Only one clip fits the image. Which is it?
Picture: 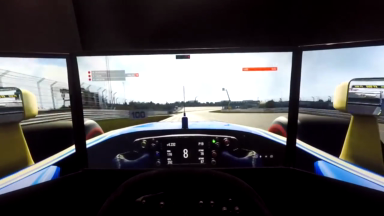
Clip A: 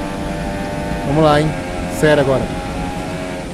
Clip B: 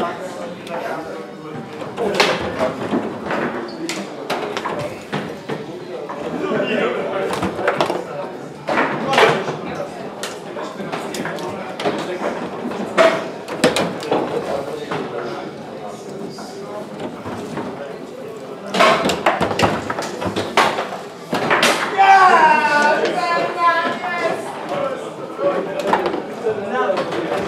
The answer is A